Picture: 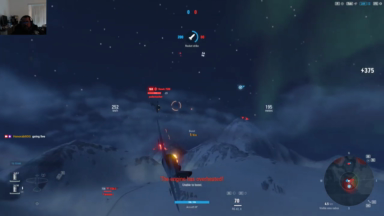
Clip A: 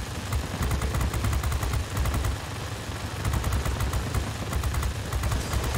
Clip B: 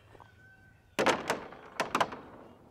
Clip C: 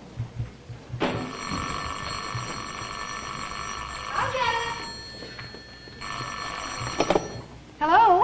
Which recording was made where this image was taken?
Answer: A